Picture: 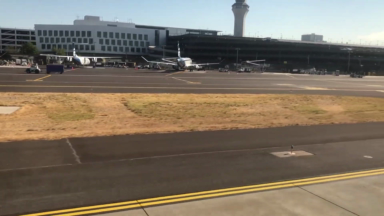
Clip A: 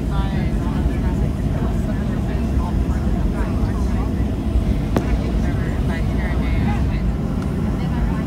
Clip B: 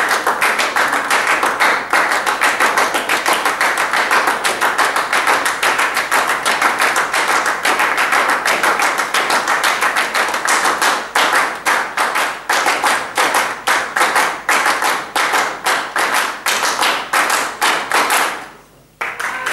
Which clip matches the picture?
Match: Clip A